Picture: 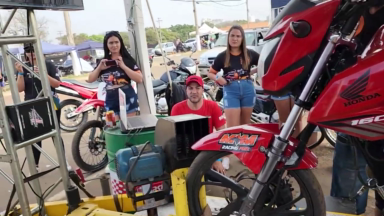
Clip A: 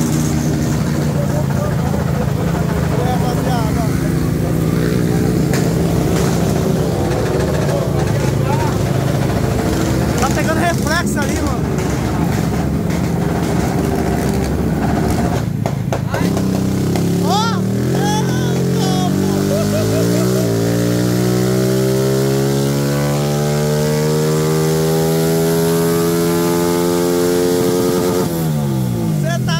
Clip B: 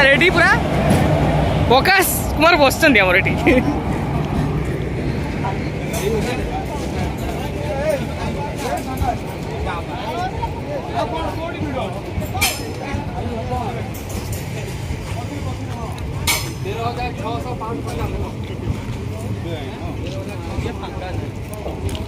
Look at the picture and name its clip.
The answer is A